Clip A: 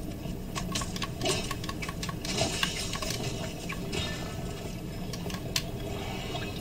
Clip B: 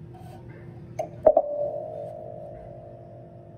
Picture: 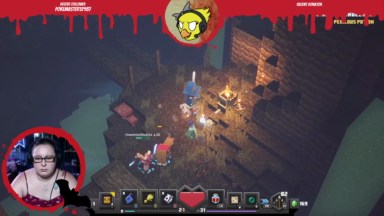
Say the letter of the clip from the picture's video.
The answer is A